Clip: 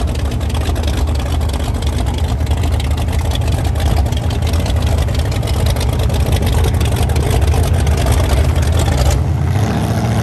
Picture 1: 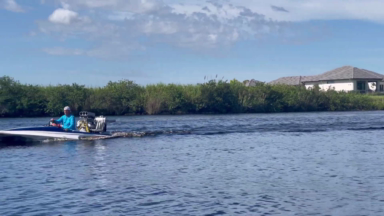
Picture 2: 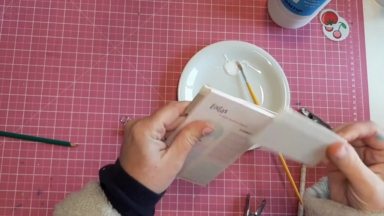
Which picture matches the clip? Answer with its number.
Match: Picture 1